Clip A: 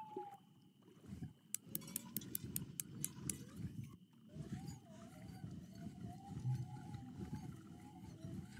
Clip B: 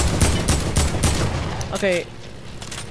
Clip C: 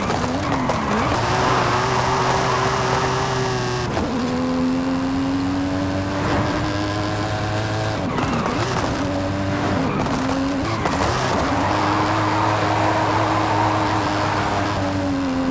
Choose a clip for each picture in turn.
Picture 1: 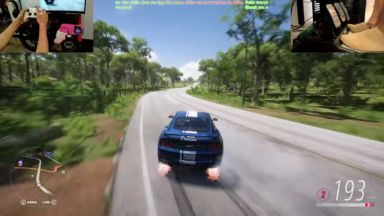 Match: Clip C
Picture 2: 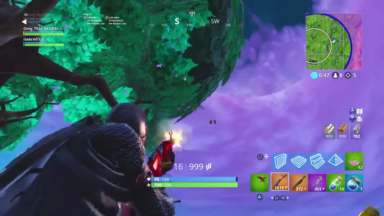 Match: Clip B